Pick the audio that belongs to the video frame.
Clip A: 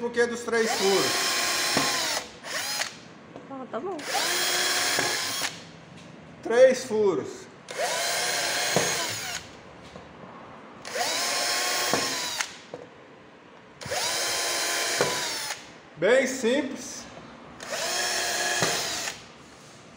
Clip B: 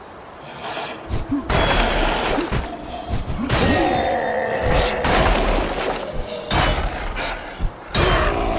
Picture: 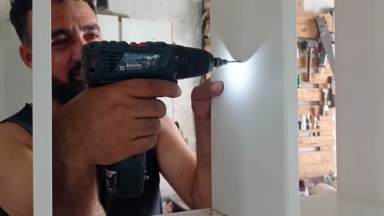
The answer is A